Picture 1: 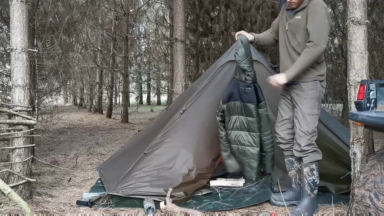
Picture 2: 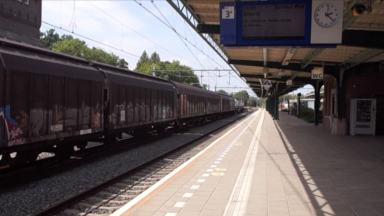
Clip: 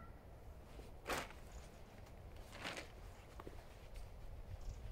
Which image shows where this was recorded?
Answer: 1